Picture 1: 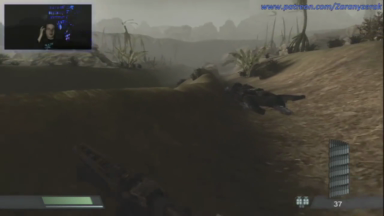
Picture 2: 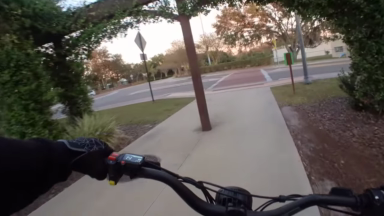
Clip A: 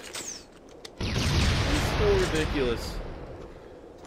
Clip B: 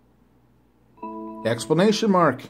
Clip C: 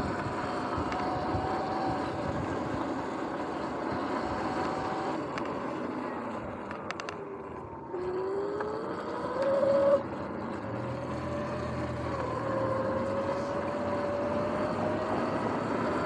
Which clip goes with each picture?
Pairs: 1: A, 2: C